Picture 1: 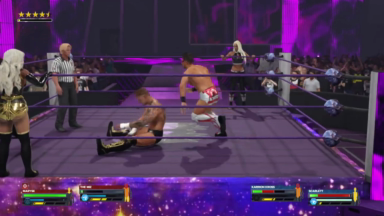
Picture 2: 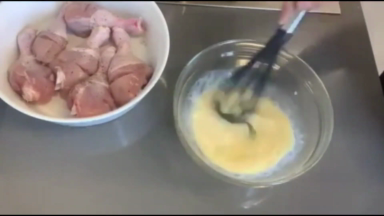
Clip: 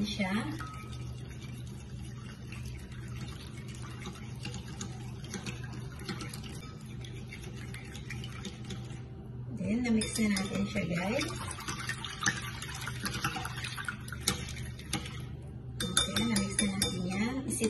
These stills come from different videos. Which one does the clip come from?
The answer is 2